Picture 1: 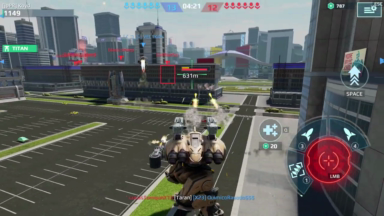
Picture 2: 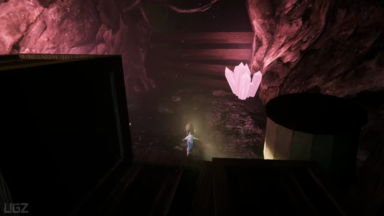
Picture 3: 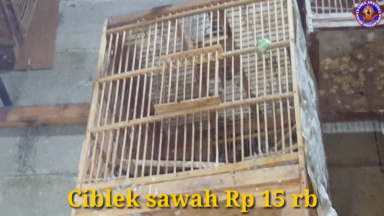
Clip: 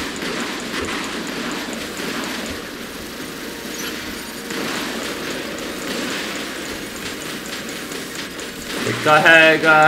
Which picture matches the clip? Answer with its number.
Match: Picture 1